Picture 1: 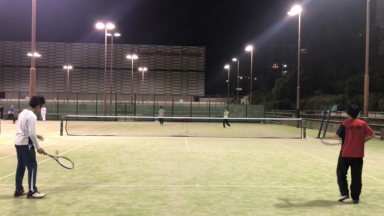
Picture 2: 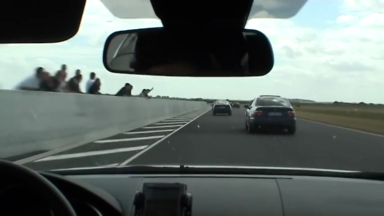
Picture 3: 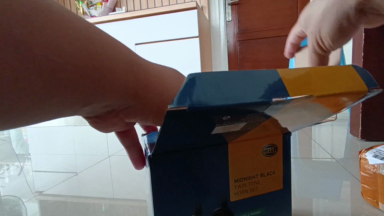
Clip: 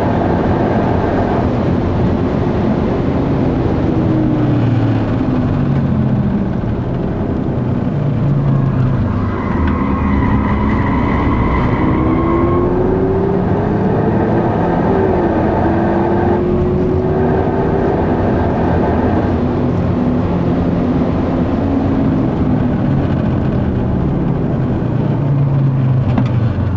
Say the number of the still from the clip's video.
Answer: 2